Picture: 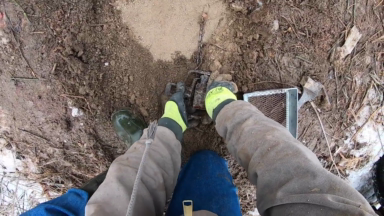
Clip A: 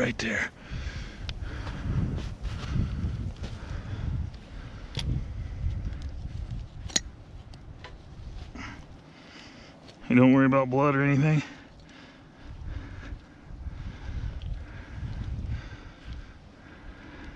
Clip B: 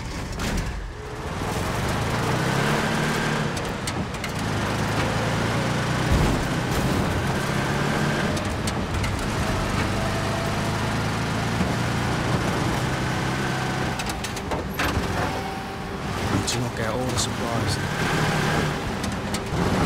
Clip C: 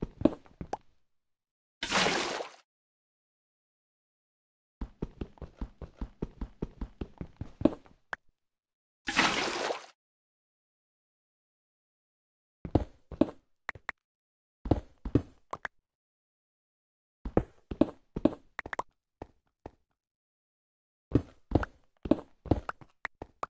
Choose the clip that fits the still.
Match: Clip A